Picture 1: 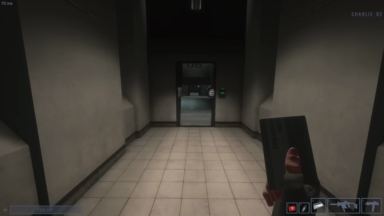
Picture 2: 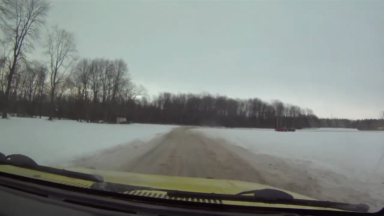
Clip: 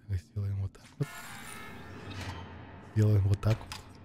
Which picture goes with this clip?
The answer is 1